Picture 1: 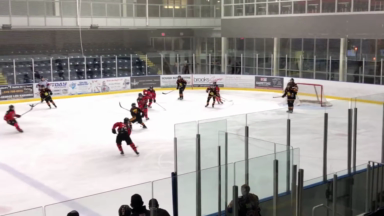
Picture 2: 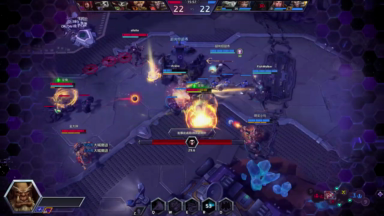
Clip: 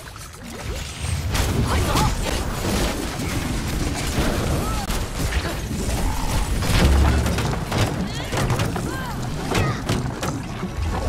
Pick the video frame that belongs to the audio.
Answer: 2